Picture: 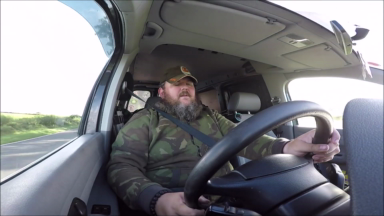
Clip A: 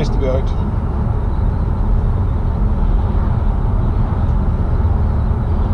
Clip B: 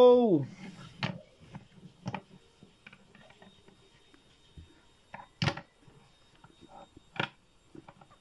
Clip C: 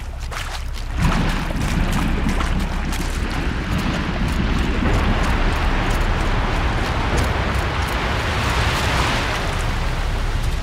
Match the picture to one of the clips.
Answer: A